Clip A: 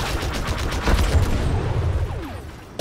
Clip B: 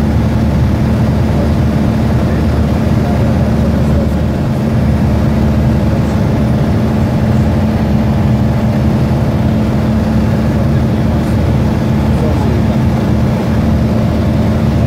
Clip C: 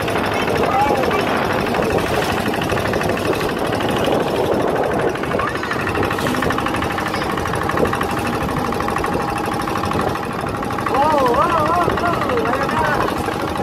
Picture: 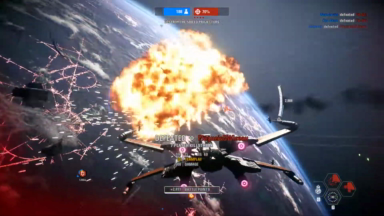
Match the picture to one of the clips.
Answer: A